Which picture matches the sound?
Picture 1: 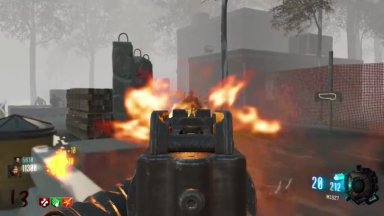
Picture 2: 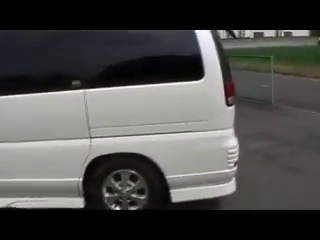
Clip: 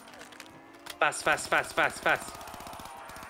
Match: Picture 1